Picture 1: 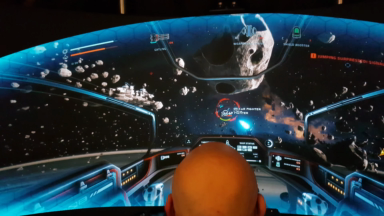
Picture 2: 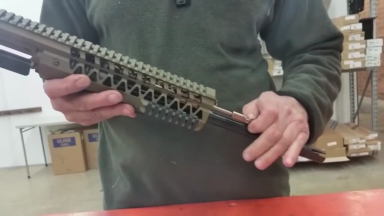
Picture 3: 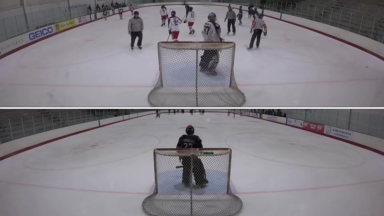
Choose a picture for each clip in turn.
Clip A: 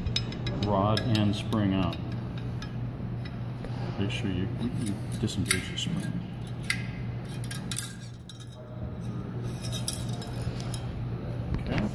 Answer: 2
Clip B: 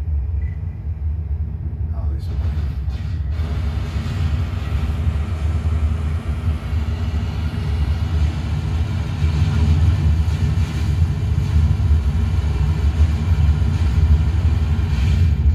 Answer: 1